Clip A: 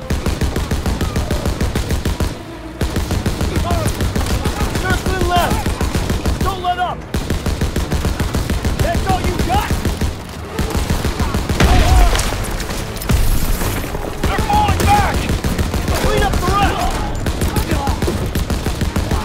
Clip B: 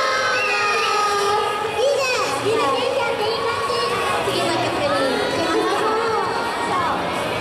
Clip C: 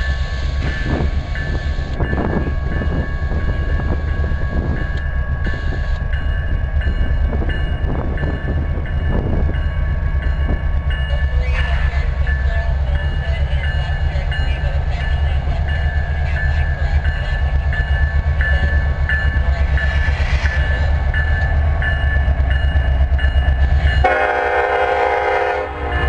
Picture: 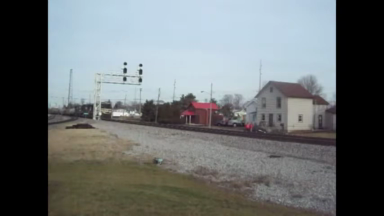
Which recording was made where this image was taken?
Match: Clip C